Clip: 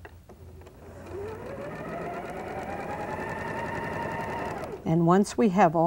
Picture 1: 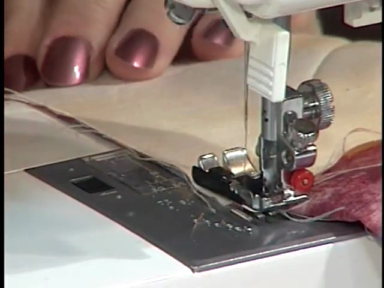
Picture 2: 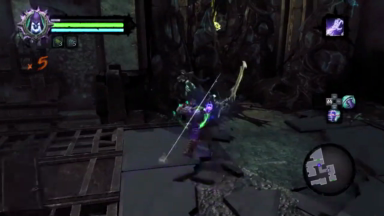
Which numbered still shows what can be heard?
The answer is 1